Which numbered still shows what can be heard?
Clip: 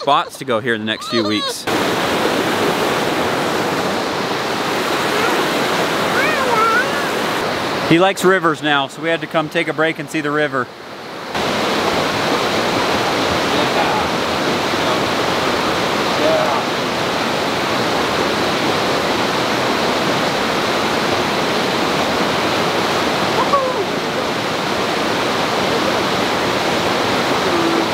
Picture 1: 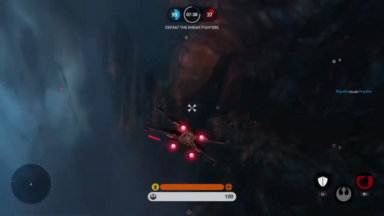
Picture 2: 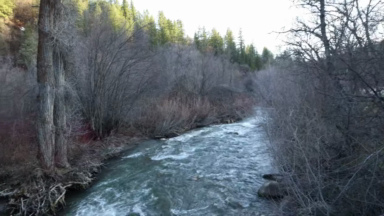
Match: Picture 2